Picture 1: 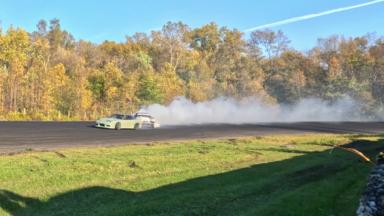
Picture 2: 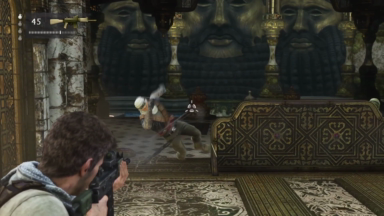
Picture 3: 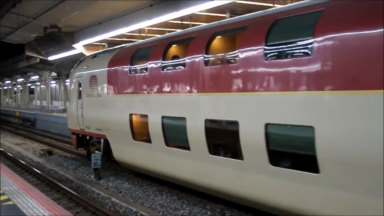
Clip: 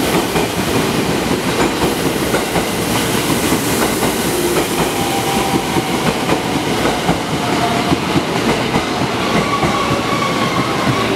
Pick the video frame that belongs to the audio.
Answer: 3